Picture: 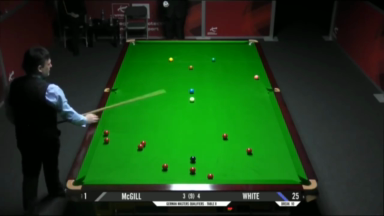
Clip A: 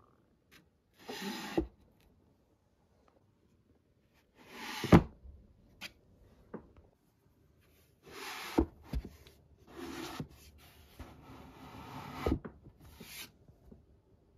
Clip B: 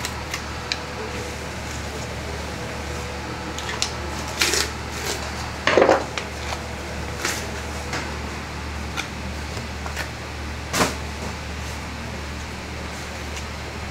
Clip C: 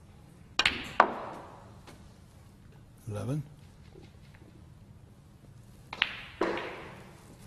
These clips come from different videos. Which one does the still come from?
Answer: C